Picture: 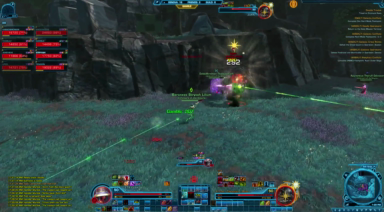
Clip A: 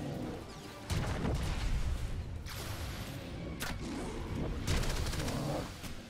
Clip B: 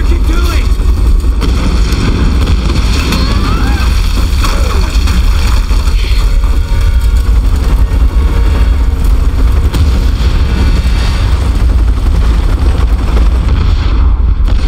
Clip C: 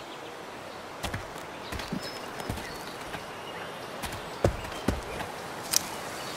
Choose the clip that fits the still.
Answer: A